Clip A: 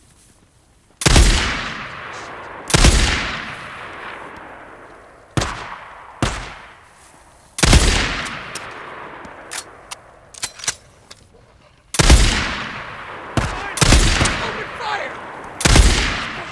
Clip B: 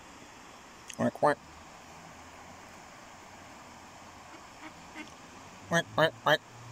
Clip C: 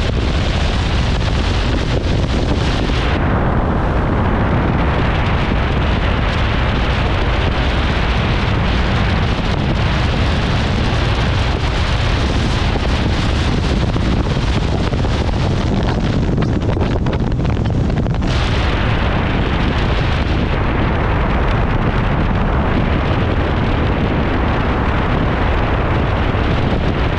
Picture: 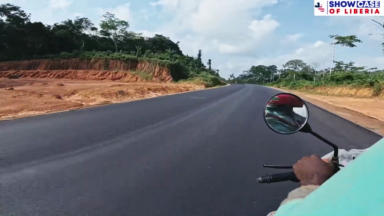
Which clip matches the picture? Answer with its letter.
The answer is C